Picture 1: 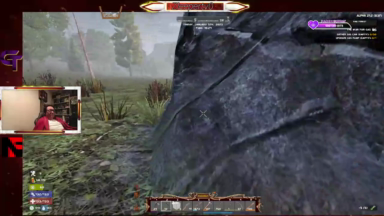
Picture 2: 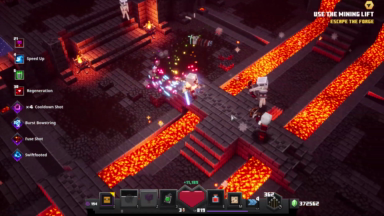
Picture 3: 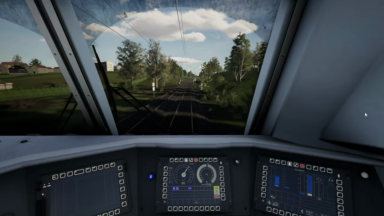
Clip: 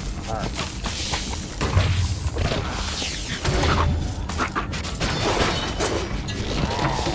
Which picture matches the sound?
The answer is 2